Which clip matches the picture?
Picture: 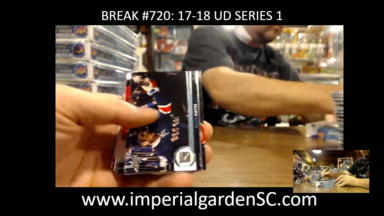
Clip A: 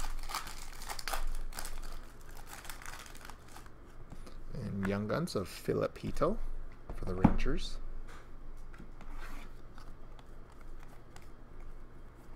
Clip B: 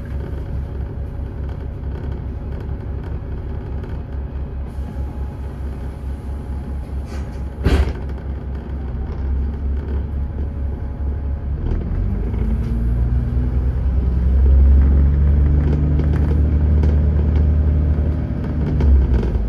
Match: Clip A